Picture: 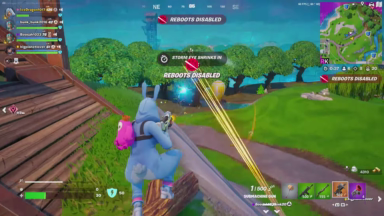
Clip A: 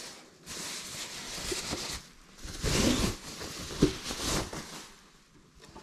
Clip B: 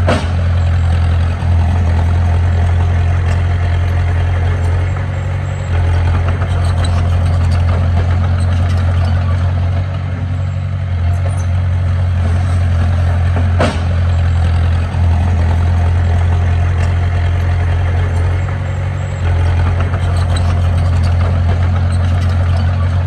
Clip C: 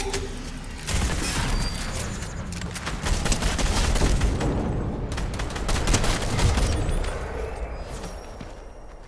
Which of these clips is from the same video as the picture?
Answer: C